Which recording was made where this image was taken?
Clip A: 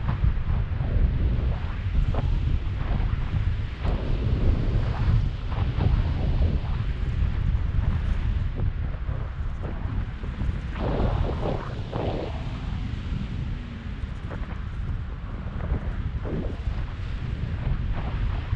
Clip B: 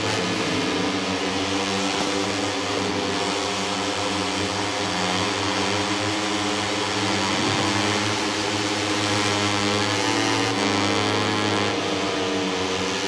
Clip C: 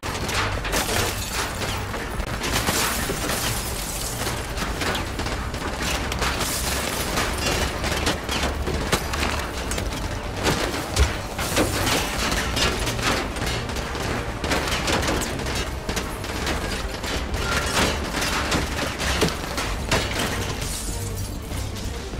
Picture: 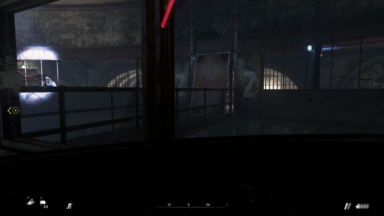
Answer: C